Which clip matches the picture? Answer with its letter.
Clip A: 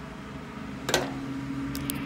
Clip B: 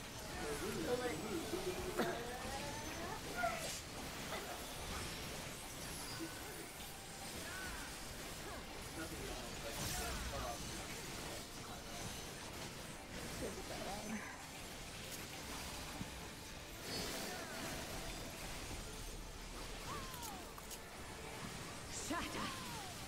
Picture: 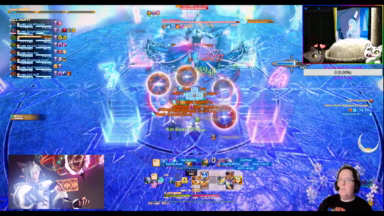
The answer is B